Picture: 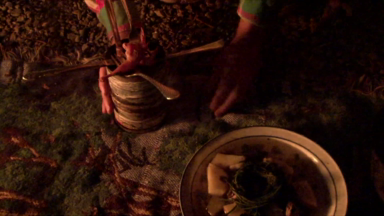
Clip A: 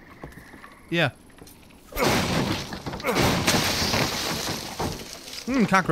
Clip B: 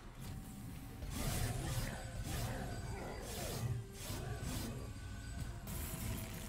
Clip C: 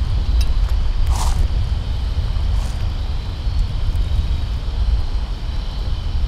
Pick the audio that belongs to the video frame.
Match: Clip C